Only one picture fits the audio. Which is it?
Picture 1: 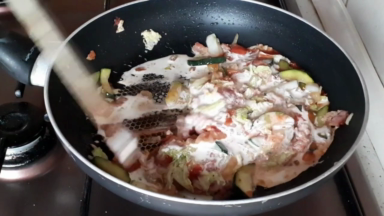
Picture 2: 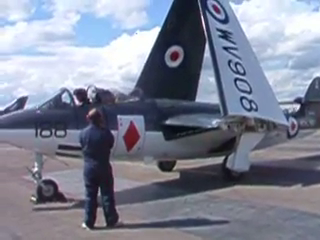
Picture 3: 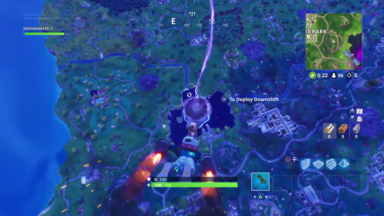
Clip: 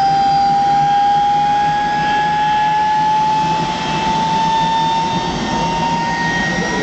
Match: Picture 2